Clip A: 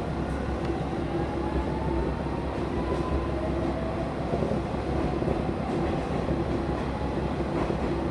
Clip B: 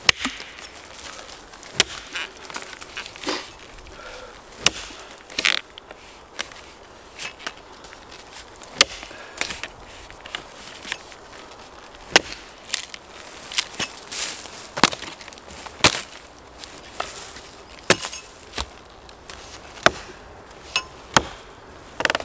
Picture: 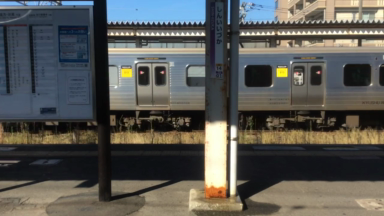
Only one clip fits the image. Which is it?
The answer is A